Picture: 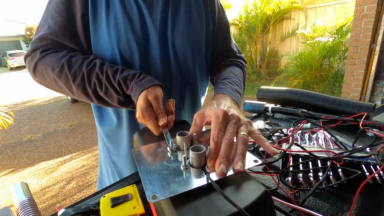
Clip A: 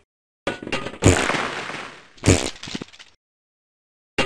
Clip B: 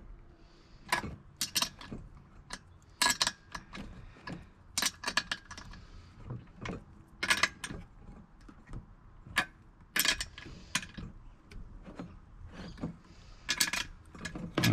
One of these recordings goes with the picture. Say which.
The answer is B